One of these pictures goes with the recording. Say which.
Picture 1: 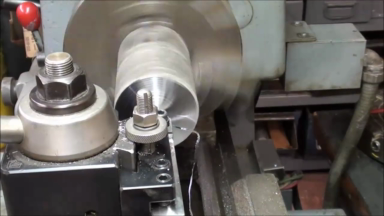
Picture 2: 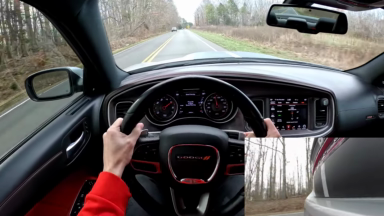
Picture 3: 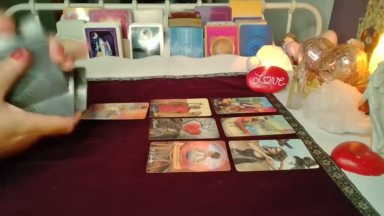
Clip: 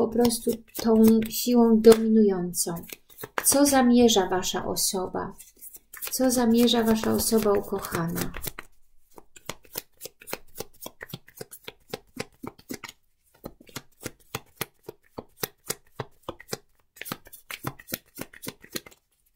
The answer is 3